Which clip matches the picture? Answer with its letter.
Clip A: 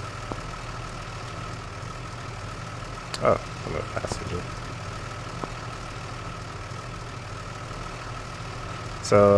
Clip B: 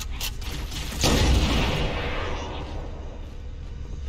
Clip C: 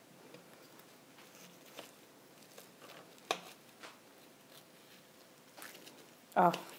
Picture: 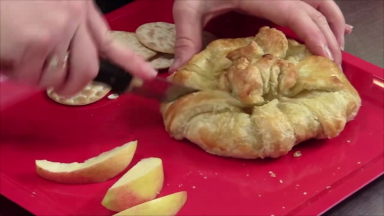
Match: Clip C